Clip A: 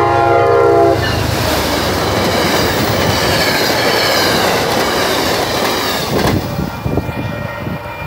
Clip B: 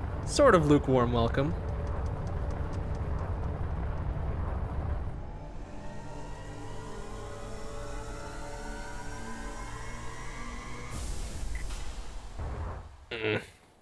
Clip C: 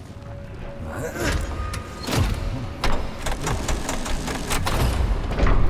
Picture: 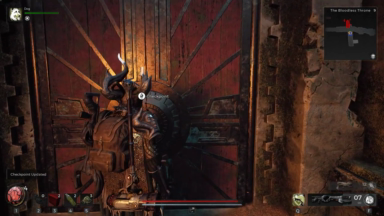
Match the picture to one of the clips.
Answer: C